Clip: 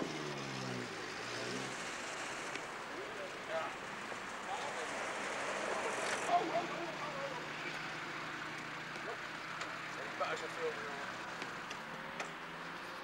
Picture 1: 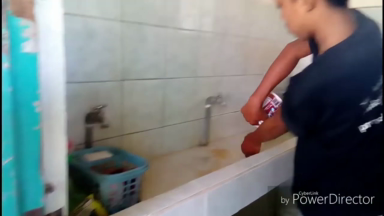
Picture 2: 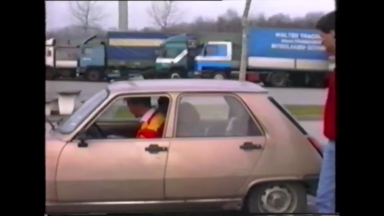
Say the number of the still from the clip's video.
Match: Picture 2